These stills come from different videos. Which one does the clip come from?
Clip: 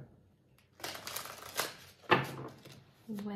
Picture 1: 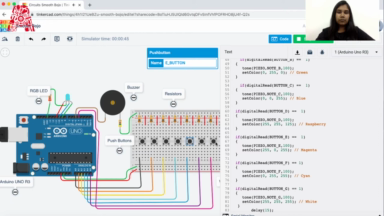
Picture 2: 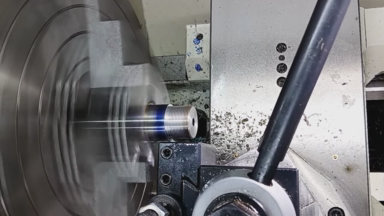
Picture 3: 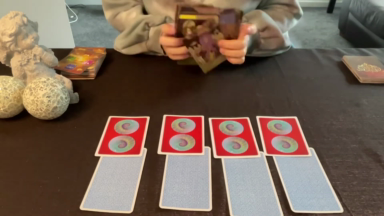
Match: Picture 3